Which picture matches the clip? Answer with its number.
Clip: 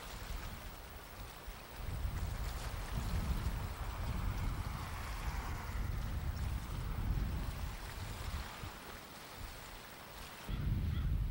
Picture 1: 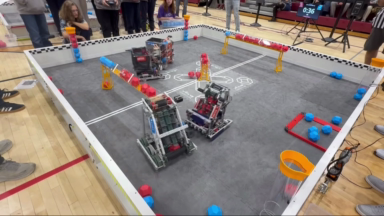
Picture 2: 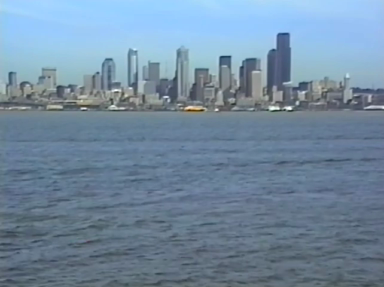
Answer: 2